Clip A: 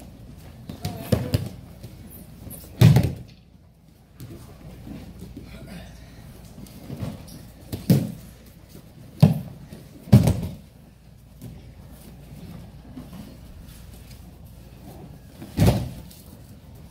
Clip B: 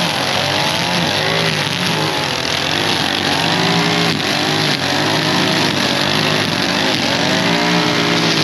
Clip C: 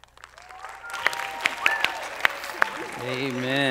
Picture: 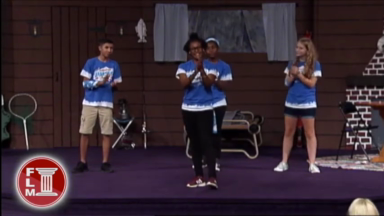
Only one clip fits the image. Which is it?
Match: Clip C